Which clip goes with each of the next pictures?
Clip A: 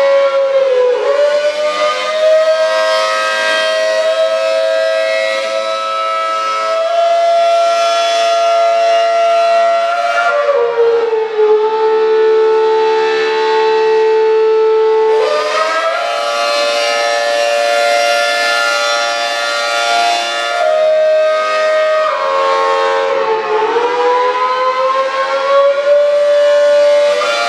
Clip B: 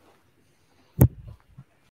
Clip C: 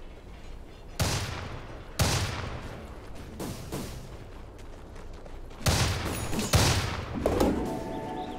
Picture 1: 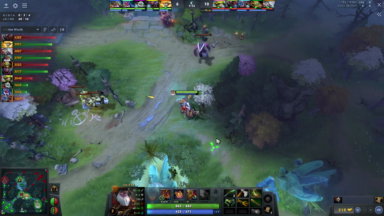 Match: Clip C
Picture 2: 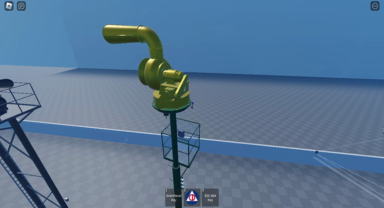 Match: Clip A